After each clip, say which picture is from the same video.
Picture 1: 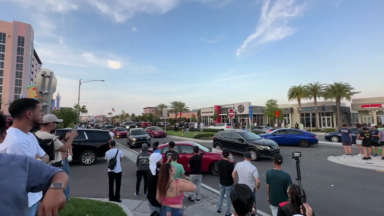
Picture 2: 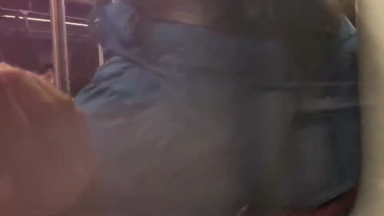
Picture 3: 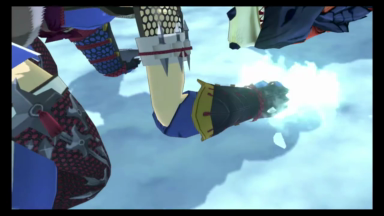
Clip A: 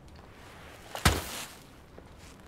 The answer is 3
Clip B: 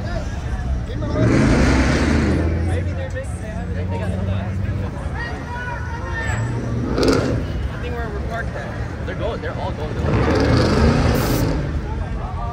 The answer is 1